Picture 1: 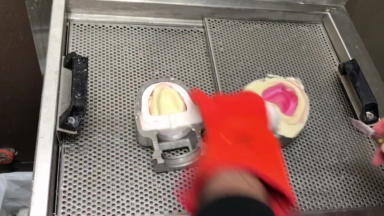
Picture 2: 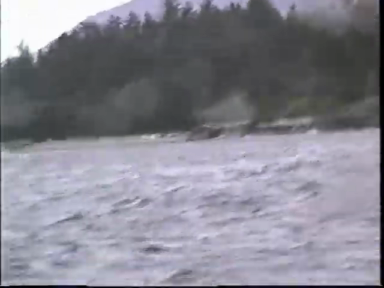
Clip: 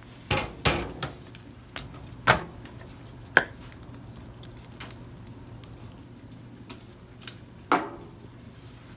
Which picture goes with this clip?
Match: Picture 1